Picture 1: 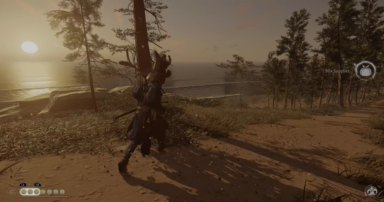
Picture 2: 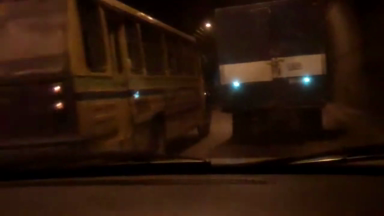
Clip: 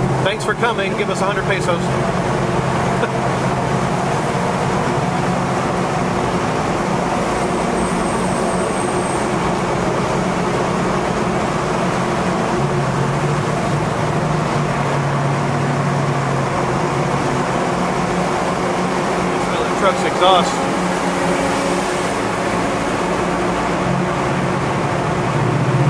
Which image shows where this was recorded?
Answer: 2